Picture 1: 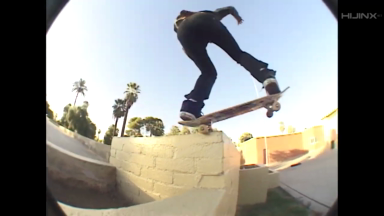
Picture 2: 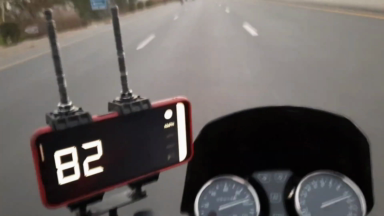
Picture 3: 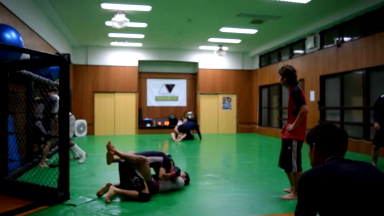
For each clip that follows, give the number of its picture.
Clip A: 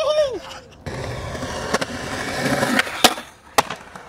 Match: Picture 1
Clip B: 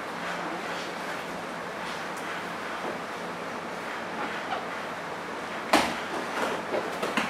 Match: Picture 3